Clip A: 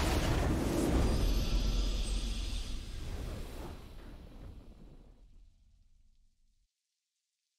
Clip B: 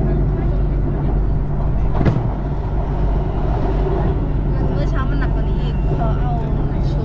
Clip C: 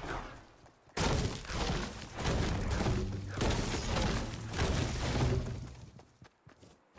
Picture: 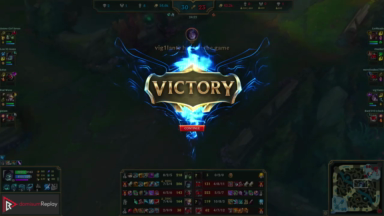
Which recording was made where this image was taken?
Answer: A